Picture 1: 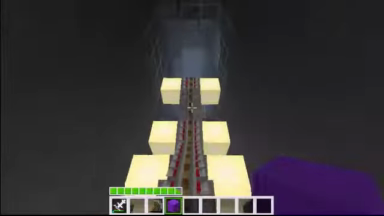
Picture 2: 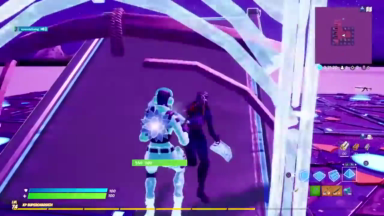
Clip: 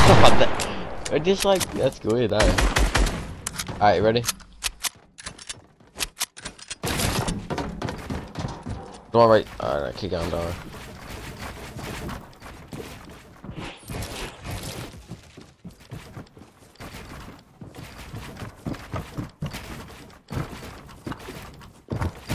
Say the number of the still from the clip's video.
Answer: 2